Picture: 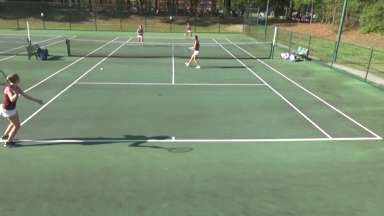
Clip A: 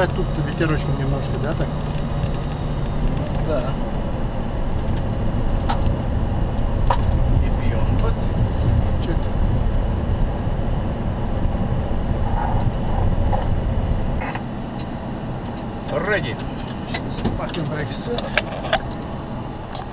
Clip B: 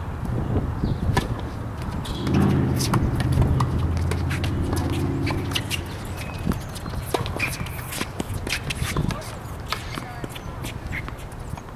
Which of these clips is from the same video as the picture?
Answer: B